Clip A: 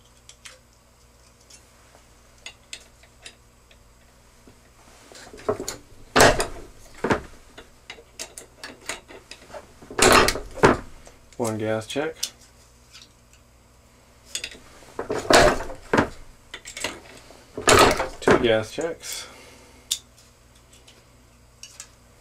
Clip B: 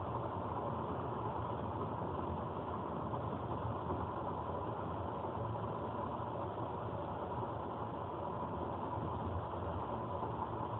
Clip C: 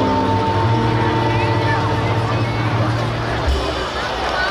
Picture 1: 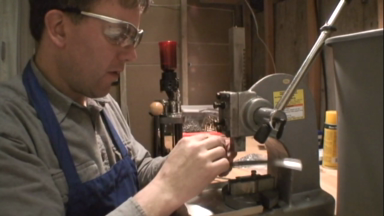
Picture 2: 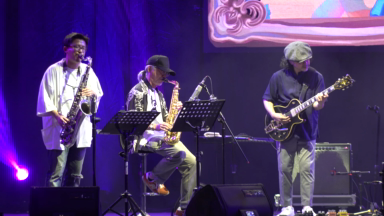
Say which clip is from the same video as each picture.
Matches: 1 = A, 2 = C